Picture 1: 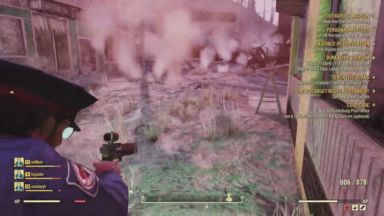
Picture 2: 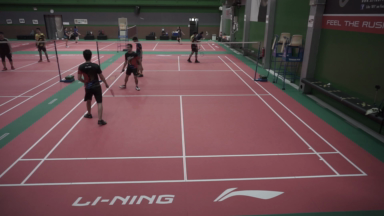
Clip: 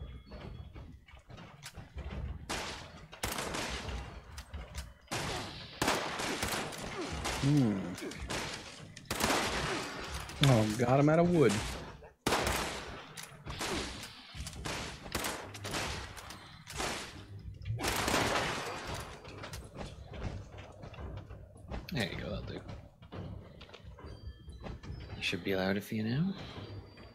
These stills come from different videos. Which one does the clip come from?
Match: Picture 1